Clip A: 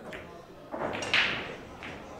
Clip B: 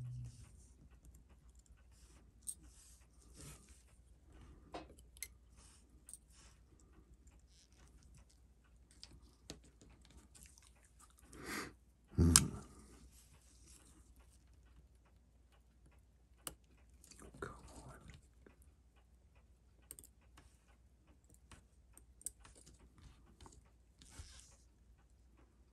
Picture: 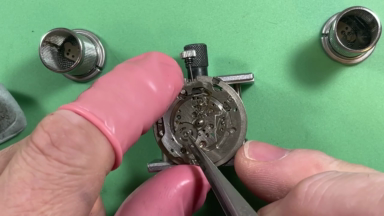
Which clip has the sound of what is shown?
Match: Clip B